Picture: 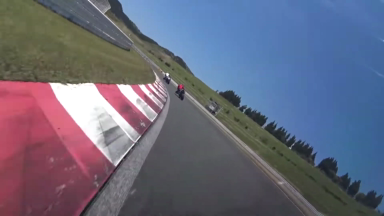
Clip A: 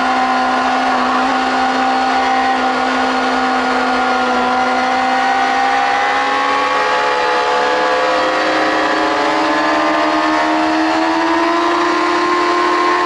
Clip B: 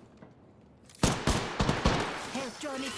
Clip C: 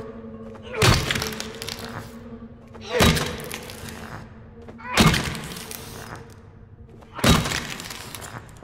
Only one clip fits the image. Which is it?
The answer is A